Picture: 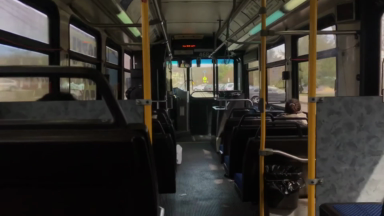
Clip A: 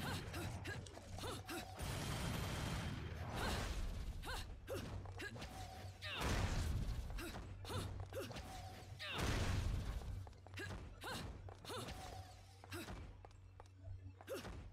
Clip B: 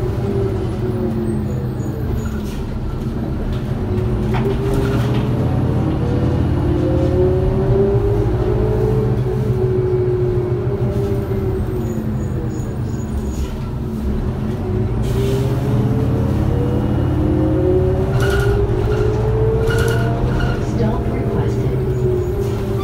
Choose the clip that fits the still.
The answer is B